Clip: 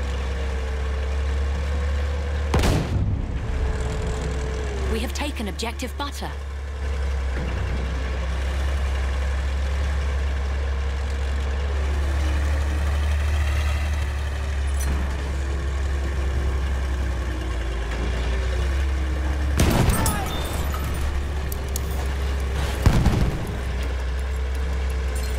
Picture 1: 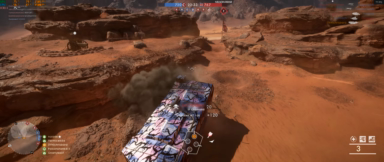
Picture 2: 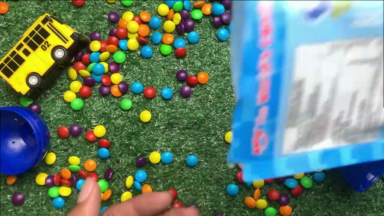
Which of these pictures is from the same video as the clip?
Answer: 1